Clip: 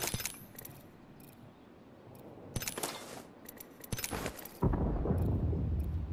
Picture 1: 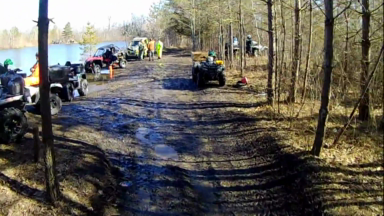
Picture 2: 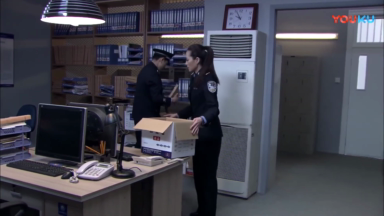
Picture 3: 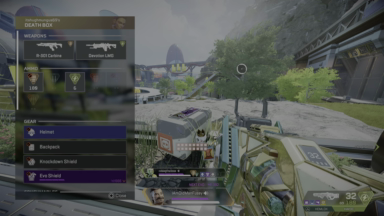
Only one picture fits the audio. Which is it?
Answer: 3